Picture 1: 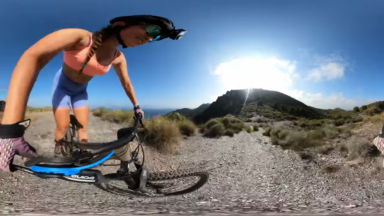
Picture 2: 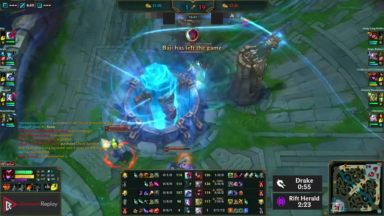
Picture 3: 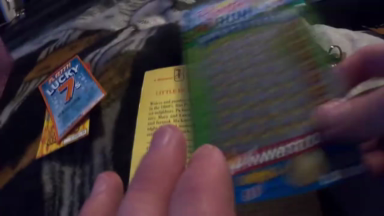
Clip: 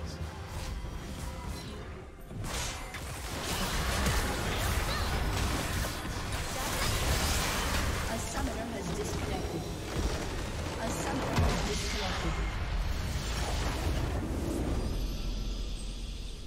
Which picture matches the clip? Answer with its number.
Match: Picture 2